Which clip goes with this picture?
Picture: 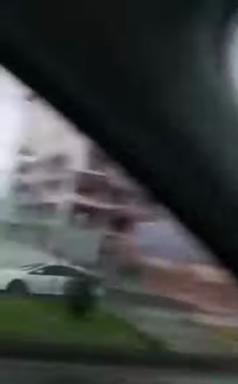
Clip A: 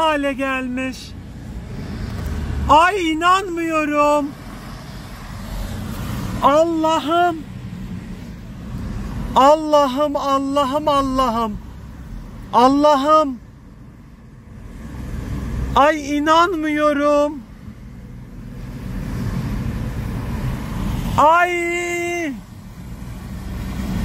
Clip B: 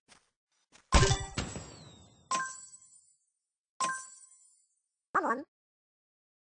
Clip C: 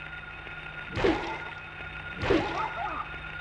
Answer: A